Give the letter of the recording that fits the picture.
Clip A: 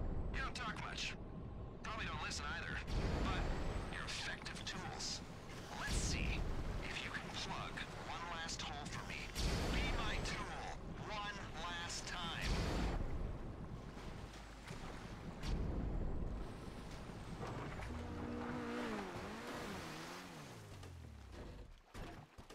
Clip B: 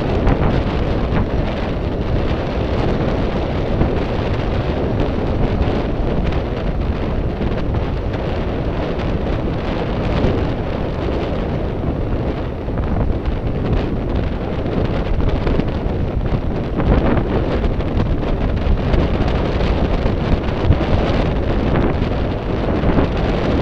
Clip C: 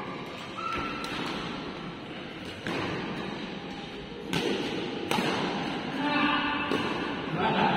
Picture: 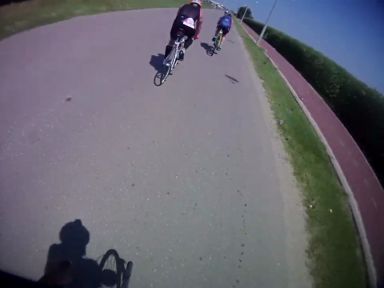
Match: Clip B